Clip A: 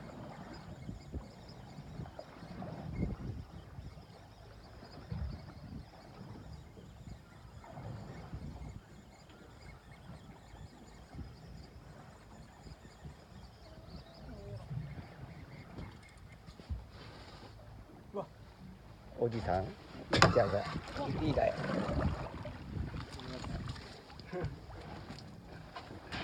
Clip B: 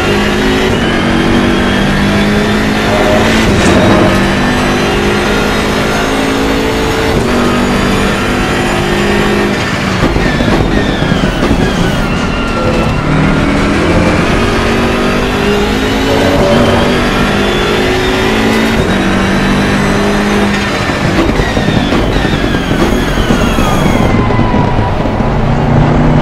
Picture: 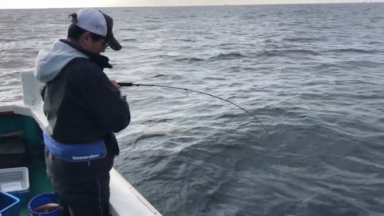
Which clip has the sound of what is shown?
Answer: A